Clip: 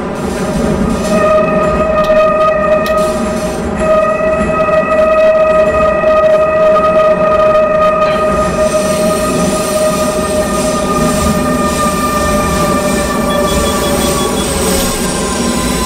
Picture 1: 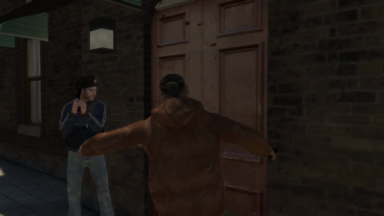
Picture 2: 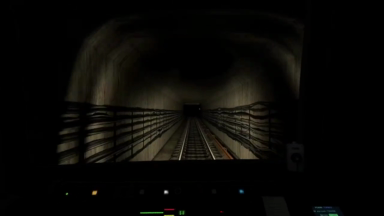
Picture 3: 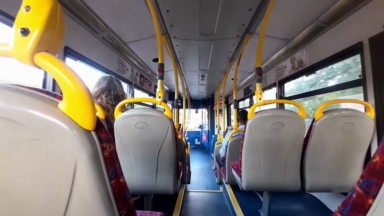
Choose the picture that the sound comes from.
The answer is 2